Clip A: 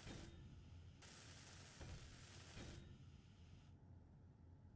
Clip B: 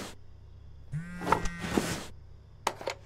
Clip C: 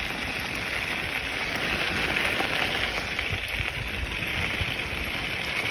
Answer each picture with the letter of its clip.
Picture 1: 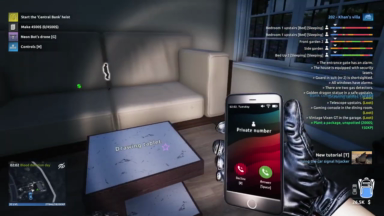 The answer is B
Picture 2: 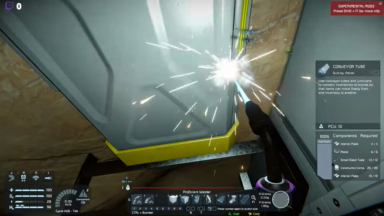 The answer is A